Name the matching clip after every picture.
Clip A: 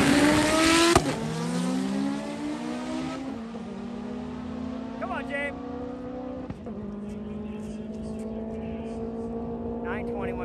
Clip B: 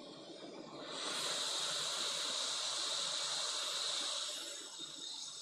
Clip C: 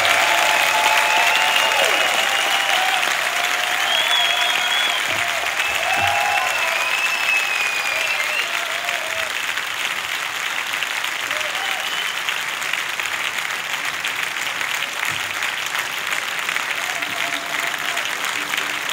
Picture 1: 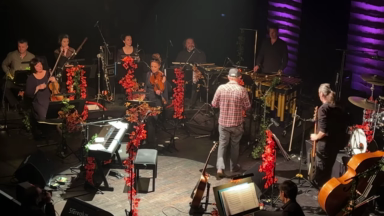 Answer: C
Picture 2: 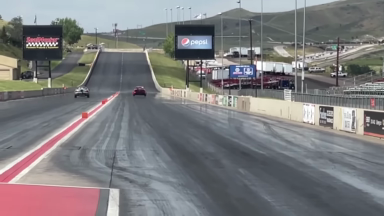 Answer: A